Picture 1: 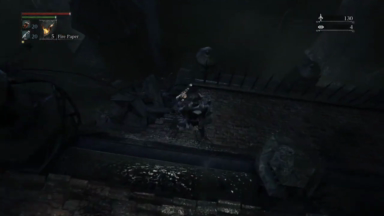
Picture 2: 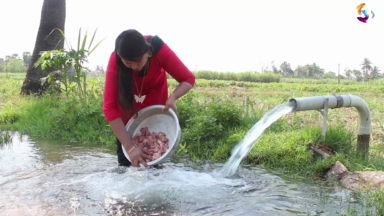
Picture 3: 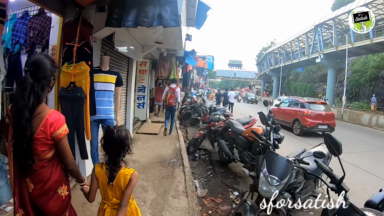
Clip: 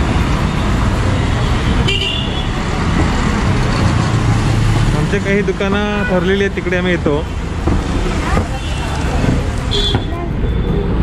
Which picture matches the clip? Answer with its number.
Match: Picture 3